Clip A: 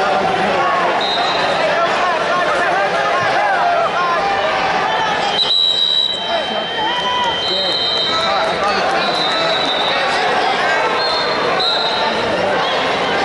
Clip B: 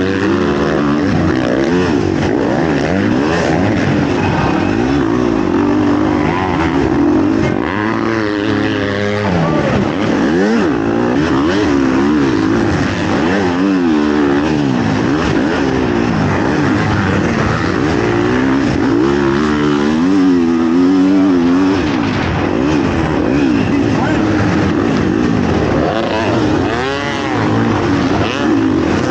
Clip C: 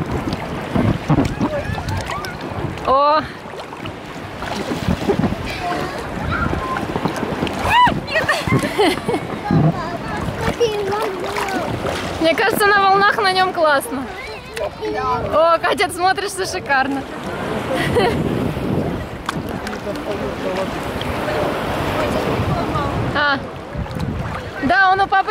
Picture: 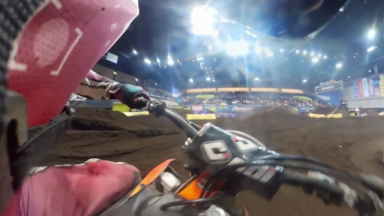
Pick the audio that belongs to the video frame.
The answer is B